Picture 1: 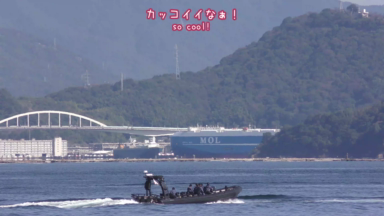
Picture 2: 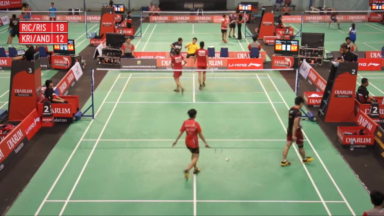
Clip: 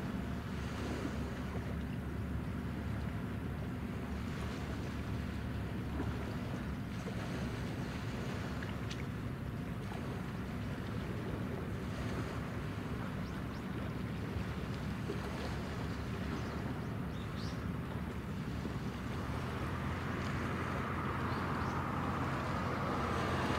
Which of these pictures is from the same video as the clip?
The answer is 1